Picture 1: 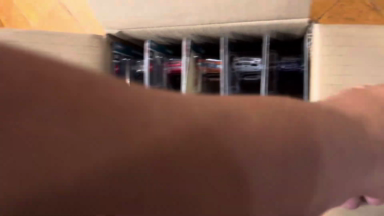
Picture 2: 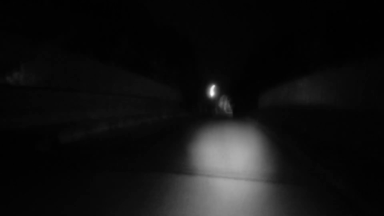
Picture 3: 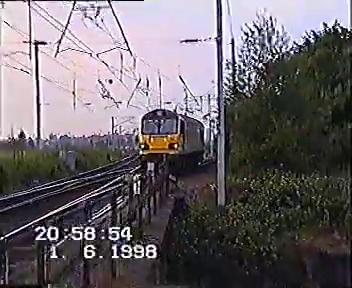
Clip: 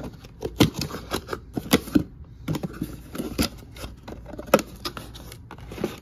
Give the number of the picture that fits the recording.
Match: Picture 1